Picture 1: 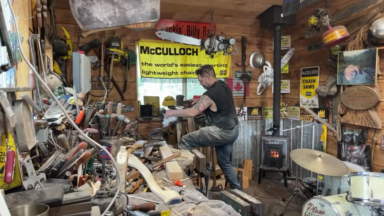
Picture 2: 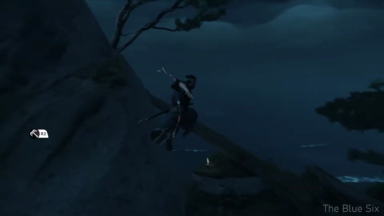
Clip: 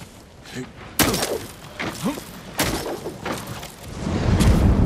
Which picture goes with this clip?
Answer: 2